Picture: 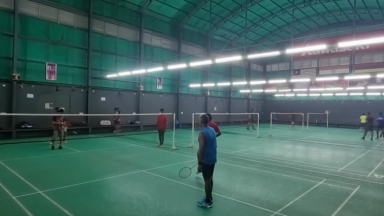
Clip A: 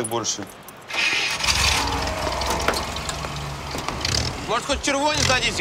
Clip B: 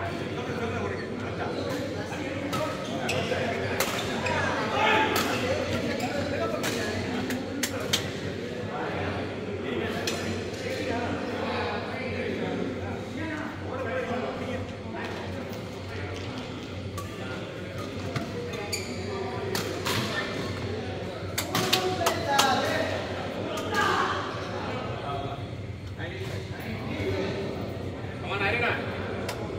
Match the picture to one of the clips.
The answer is B